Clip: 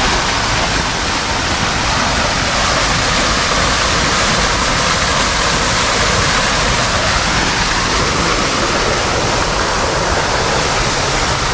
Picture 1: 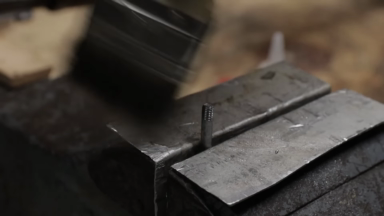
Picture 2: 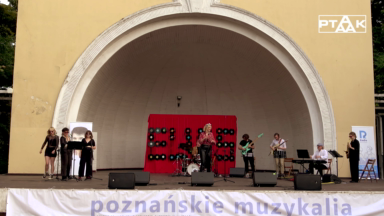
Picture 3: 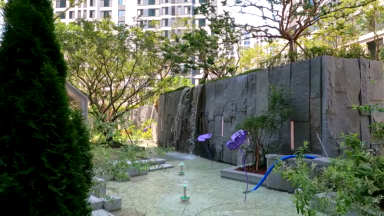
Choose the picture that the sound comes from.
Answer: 3